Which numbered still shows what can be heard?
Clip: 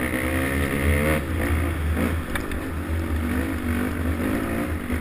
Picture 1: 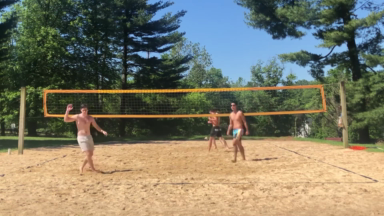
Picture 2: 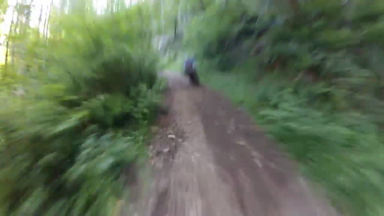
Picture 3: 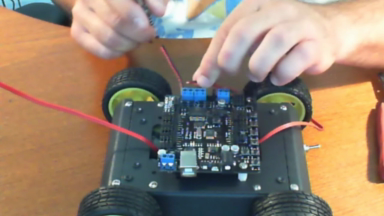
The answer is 2